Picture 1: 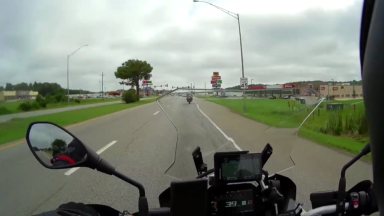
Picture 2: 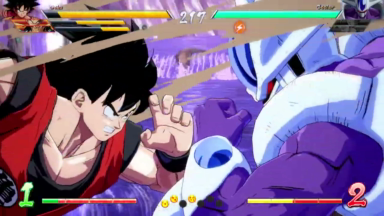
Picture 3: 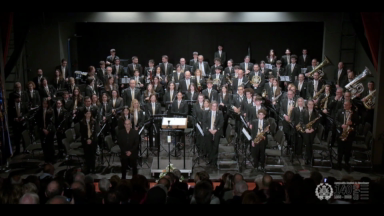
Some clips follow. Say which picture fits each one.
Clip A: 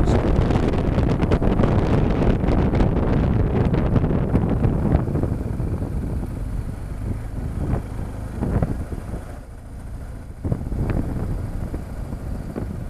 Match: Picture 1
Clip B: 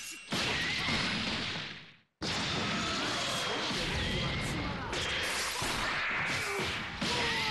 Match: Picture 2